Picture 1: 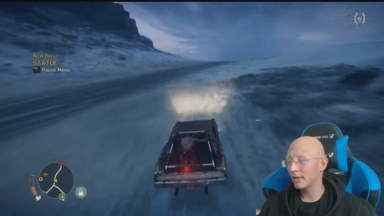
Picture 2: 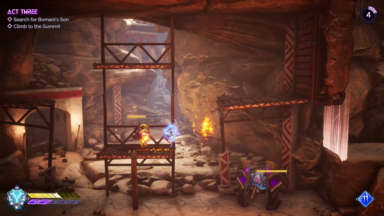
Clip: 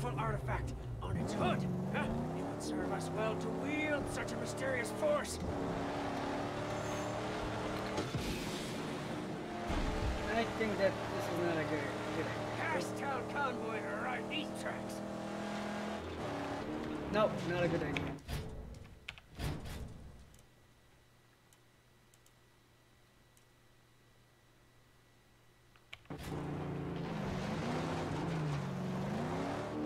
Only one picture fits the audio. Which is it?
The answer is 1